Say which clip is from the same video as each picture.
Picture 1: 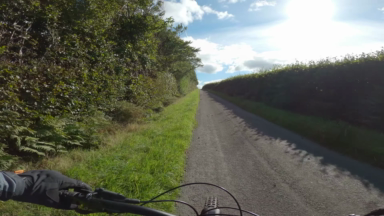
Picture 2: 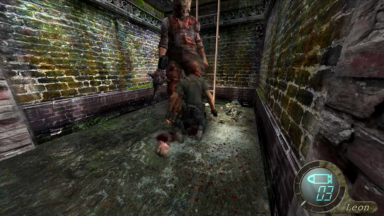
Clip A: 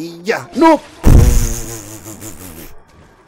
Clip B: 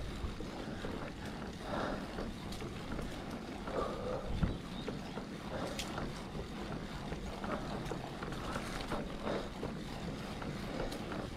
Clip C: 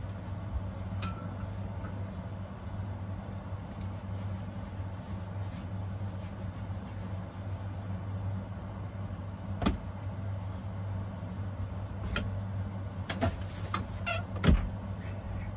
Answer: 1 B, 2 A